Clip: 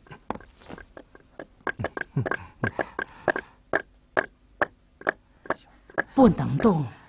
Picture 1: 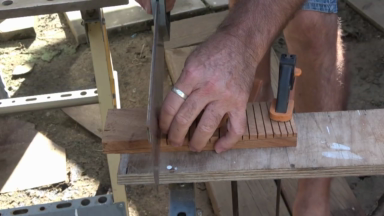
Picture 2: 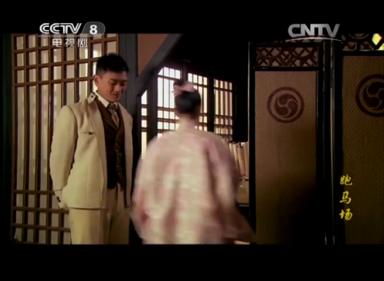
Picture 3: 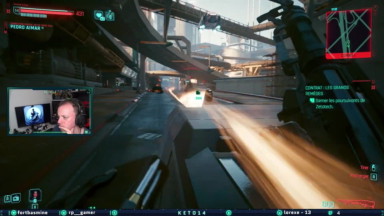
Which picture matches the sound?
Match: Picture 2